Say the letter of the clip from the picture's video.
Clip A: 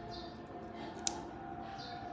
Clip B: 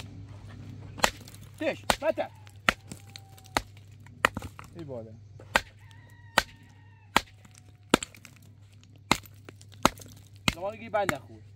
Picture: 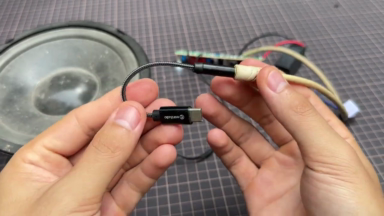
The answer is A